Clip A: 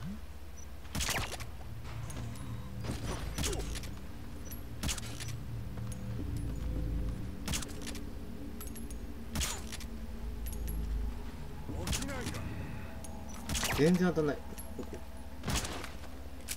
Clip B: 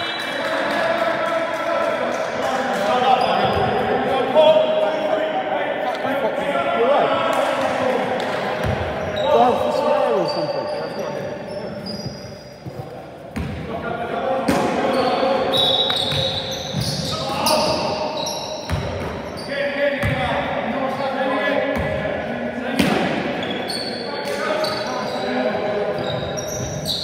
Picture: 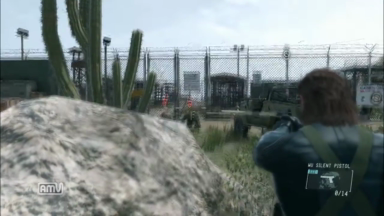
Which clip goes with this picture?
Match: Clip A